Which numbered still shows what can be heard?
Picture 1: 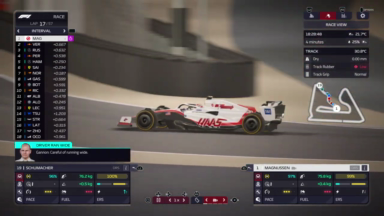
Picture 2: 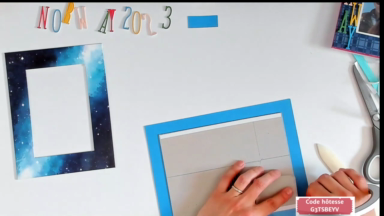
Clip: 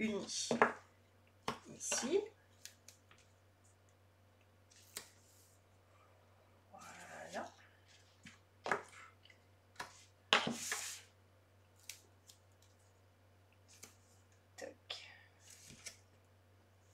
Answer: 2